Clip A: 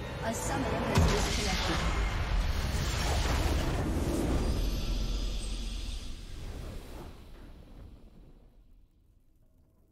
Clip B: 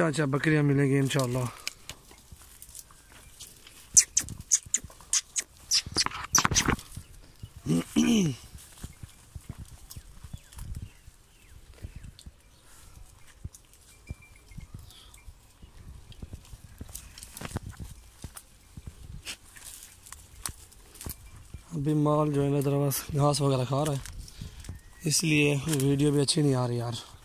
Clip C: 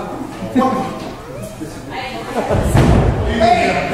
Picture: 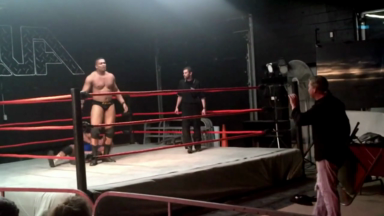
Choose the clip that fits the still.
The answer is C